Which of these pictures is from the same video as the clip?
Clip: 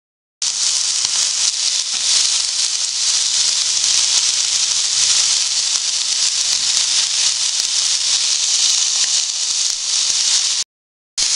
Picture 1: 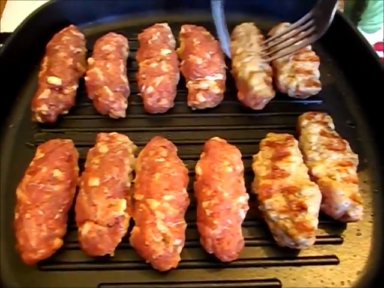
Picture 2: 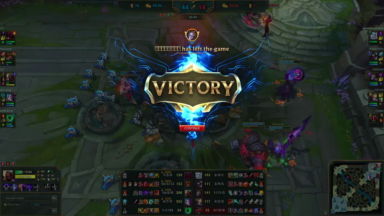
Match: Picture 1